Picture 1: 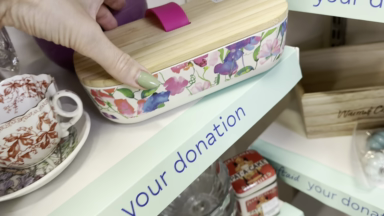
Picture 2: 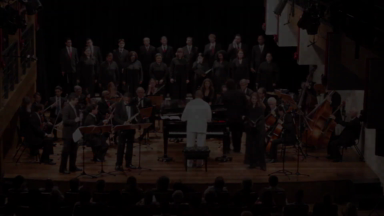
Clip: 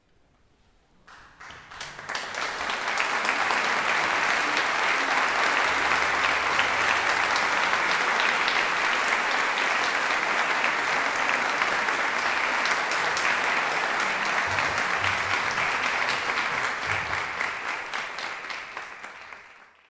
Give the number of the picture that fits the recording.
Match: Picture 2